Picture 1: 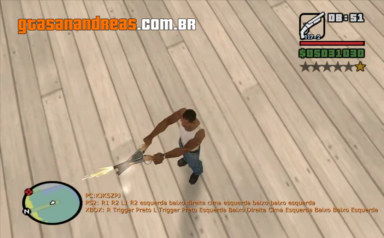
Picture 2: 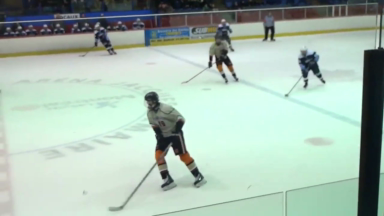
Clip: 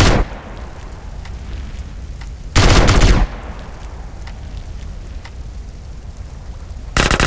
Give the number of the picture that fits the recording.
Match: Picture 1